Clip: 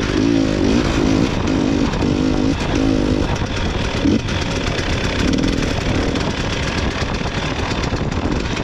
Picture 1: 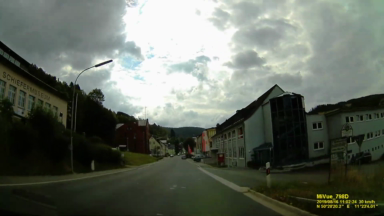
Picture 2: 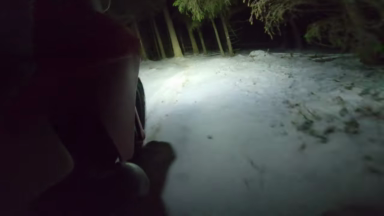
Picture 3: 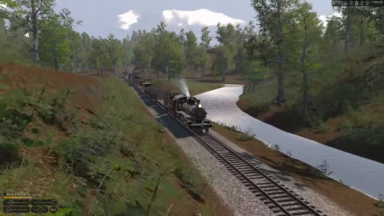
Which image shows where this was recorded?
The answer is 2